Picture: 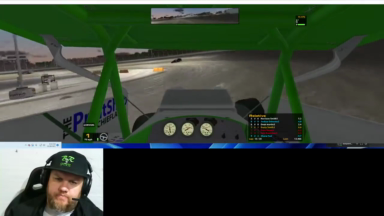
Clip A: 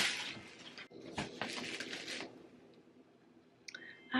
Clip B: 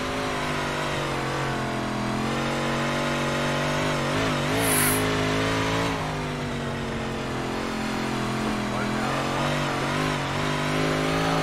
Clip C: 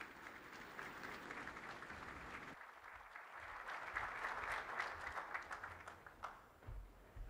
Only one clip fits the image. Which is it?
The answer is B